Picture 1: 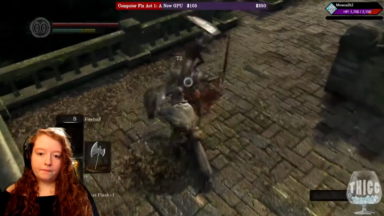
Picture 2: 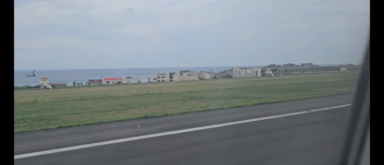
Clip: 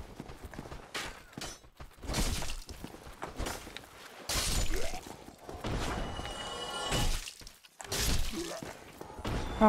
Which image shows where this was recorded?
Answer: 1